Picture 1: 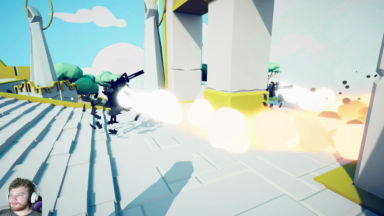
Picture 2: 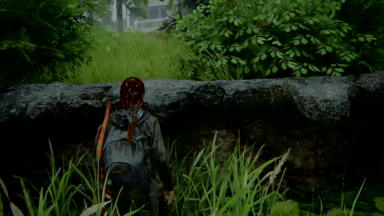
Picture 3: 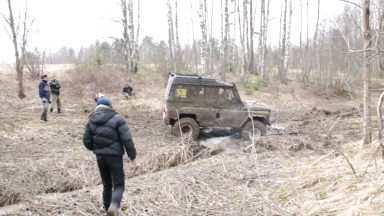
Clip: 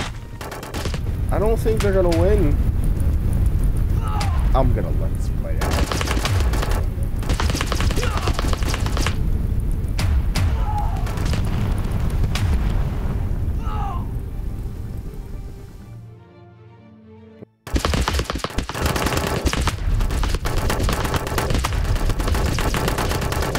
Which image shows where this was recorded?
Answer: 1